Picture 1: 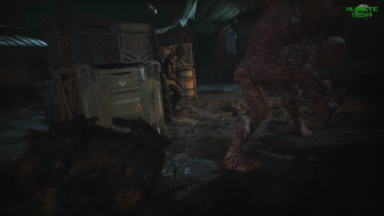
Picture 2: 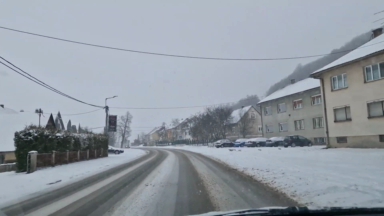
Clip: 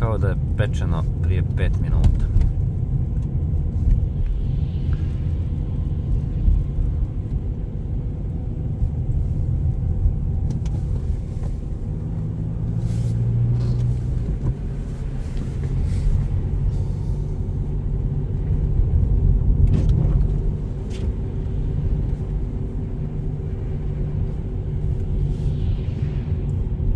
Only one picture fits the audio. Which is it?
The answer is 2